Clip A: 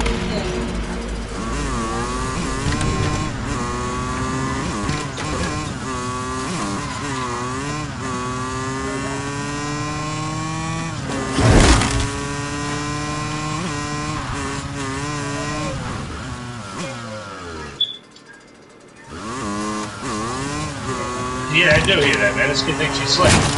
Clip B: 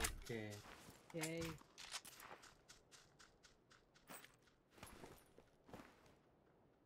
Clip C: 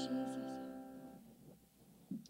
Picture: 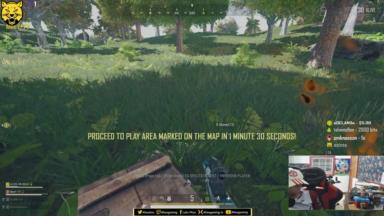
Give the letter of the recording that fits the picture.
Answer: B